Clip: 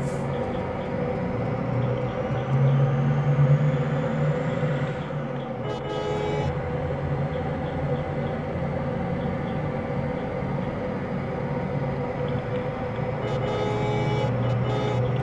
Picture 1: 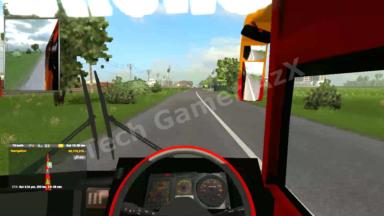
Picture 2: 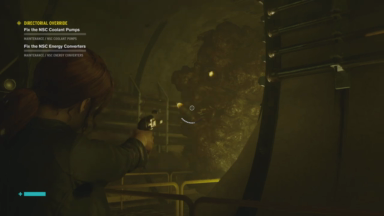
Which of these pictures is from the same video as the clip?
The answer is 1